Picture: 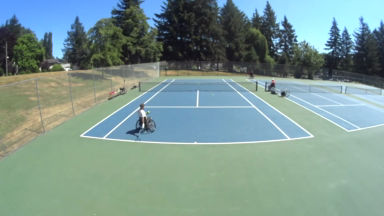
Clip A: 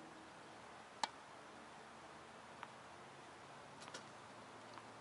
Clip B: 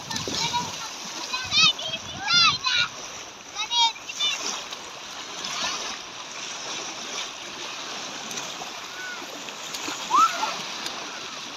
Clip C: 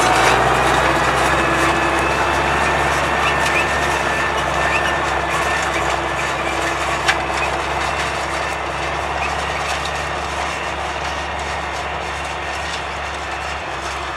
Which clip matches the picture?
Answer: A